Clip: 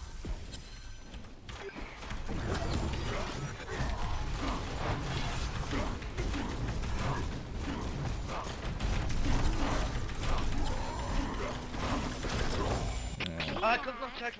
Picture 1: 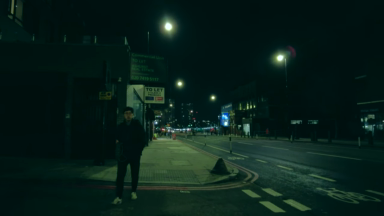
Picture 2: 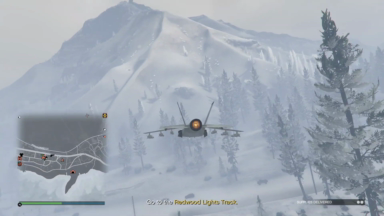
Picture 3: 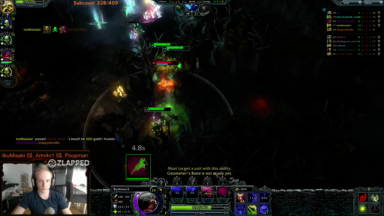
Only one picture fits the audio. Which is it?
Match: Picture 3